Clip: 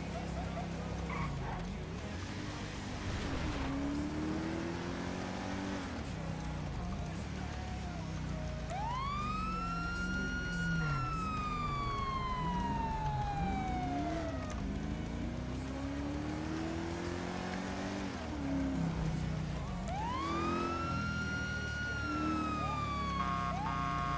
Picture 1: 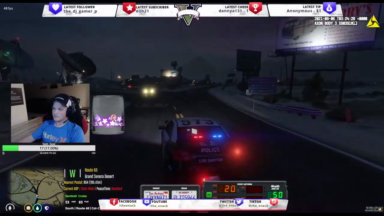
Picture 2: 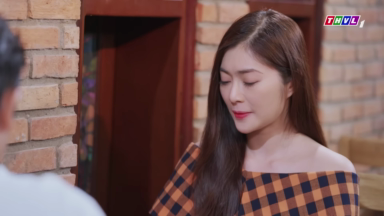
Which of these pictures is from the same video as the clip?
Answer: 1